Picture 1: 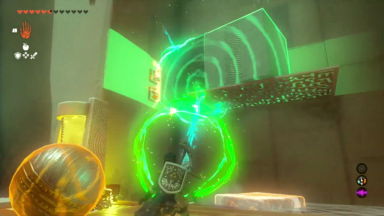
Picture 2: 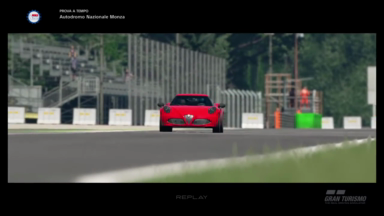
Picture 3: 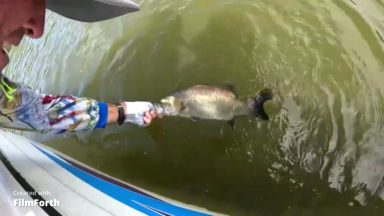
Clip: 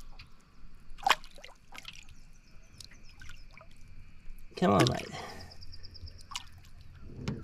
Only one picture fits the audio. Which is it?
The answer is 3